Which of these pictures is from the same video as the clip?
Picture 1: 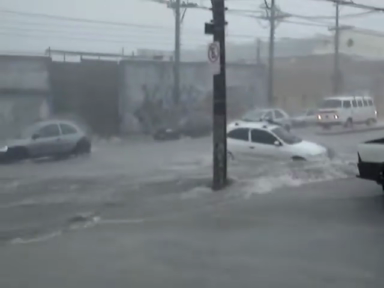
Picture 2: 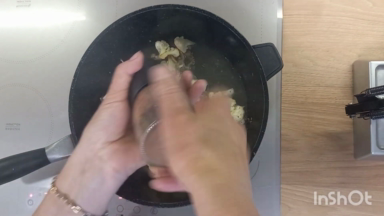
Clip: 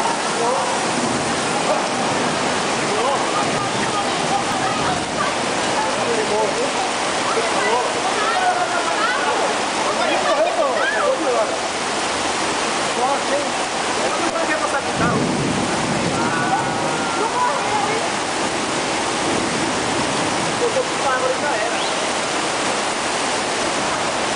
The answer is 1